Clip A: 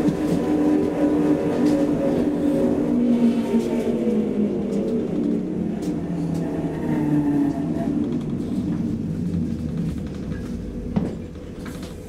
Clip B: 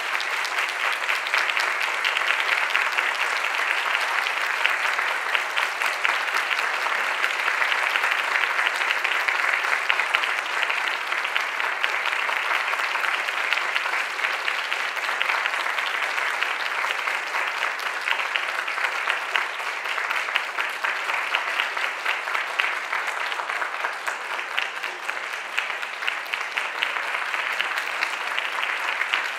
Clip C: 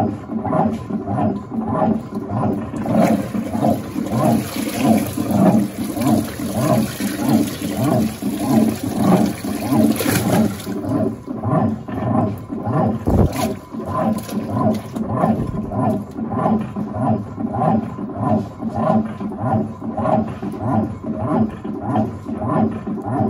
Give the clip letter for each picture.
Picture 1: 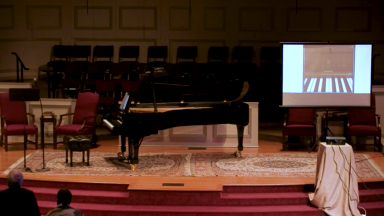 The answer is B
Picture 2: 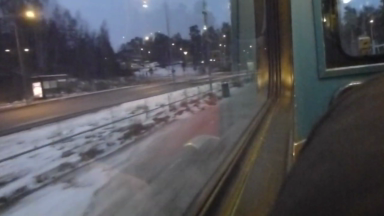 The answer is A